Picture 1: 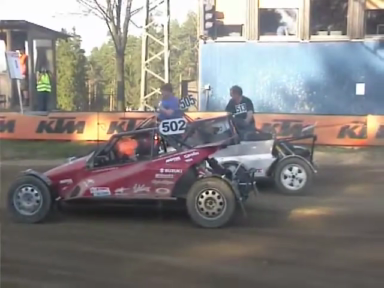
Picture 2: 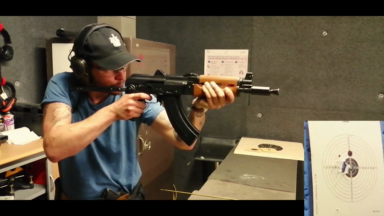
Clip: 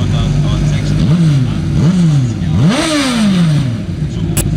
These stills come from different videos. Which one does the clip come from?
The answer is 1